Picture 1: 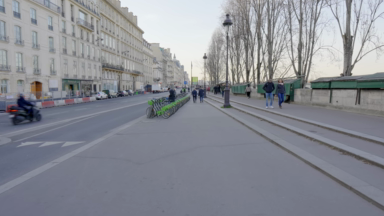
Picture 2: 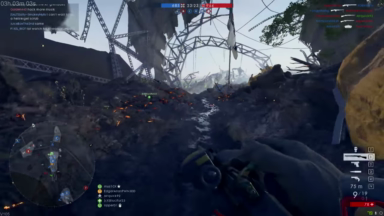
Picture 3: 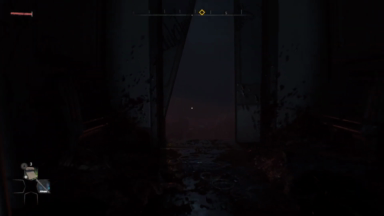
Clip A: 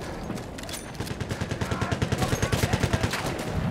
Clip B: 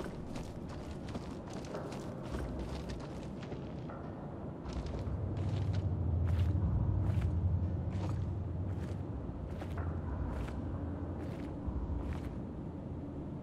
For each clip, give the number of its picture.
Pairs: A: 2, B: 3